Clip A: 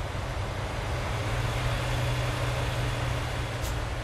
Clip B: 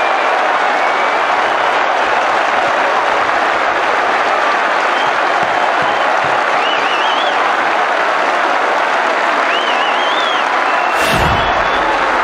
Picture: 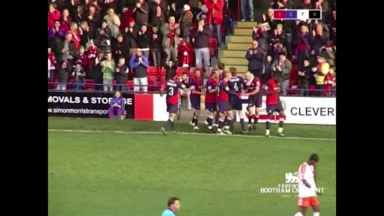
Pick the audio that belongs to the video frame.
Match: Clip B